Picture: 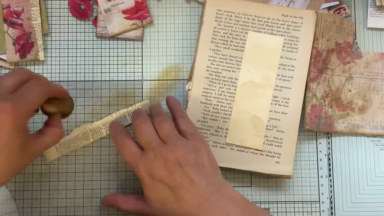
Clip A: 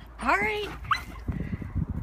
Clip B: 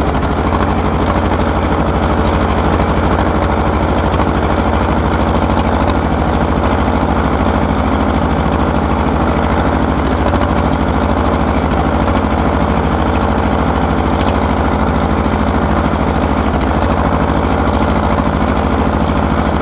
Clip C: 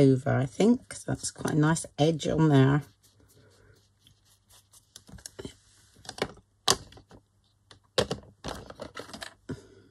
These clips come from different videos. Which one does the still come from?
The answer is C